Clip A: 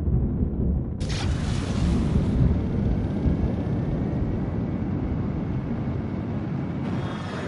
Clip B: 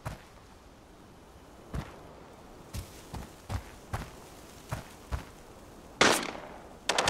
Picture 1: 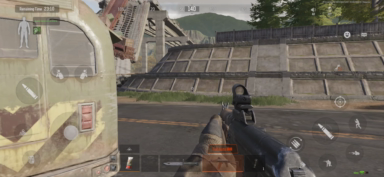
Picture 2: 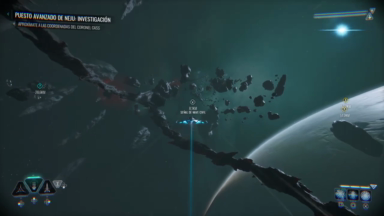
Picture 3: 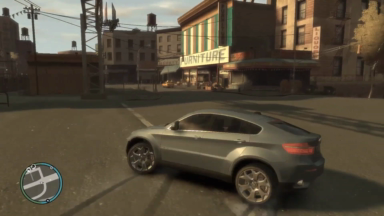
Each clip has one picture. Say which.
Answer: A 2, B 1